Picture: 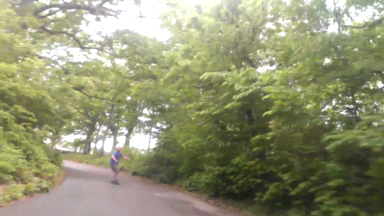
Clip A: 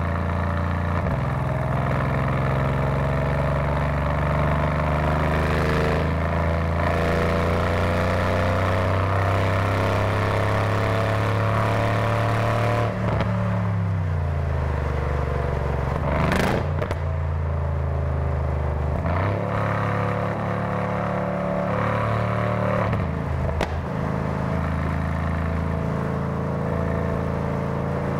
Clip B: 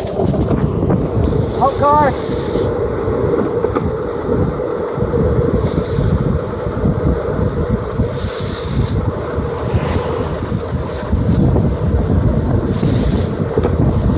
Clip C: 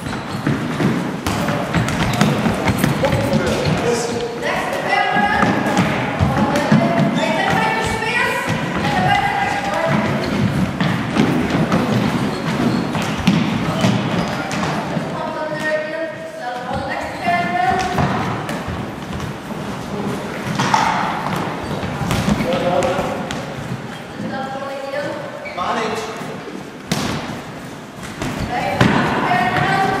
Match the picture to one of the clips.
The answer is B